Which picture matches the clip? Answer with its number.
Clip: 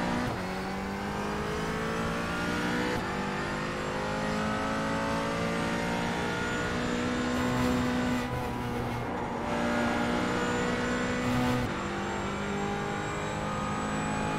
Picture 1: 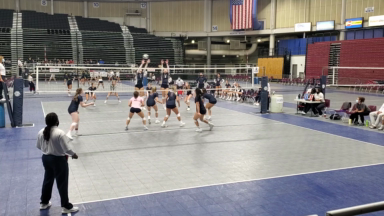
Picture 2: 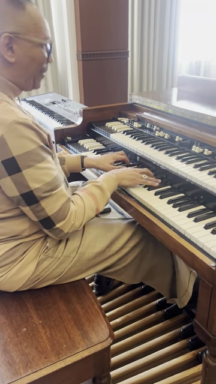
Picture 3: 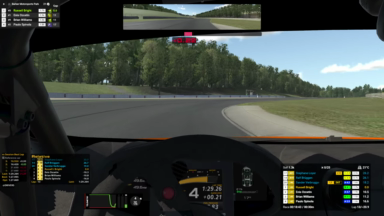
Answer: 3